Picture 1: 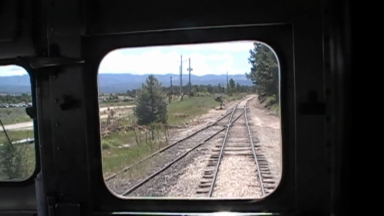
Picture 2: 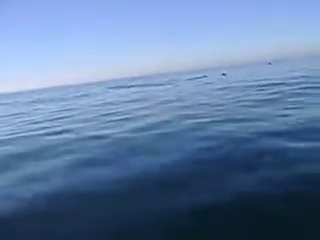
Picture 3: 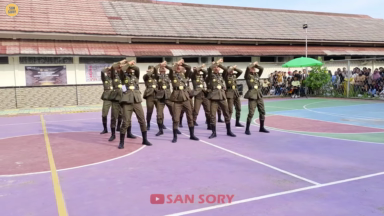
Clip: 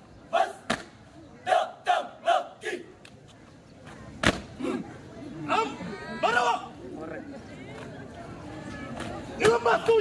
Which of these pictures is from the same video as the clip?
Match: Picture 3